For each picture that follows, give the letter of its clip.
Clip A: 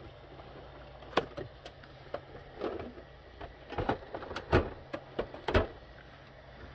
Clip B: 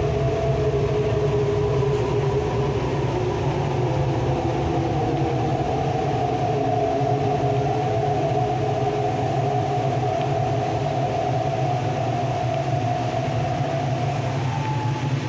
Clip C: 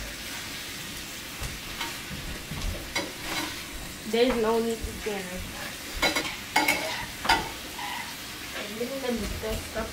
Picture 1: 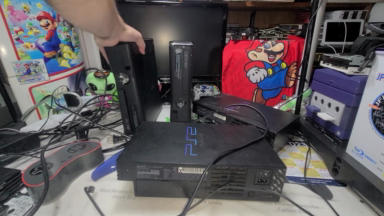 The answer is A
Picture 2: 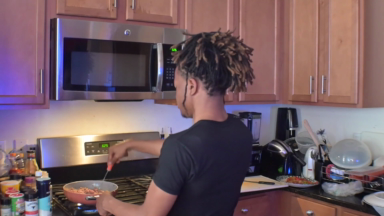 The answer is C